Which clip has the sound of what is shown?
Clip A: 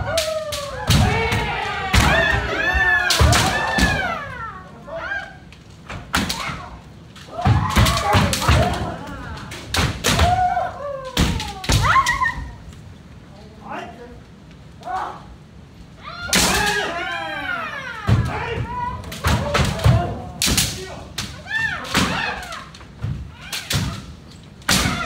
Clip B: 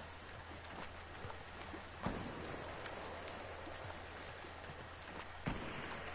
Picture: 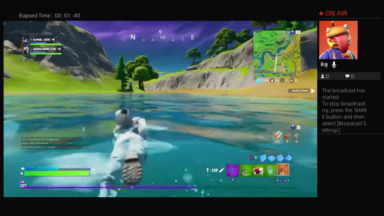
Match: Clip B